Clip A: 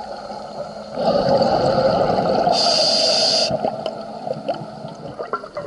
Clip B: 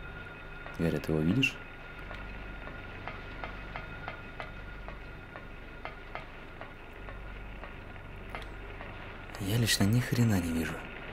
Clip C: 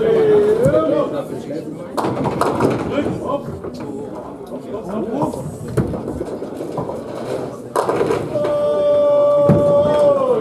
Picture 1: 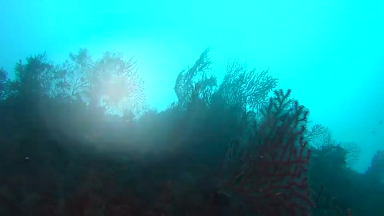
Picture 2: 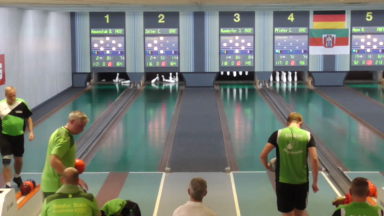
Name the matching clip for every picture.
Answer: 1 A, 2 C